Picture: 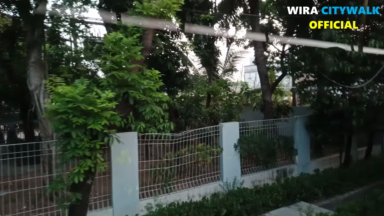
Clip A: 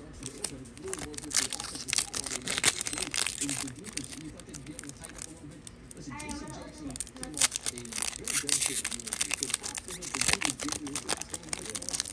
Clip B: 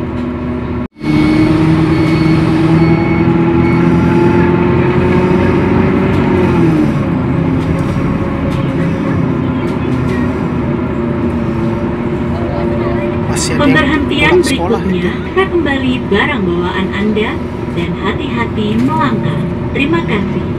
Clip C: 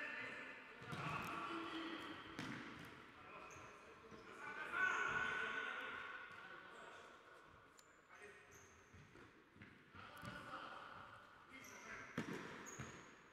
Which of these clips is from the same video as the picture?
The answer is B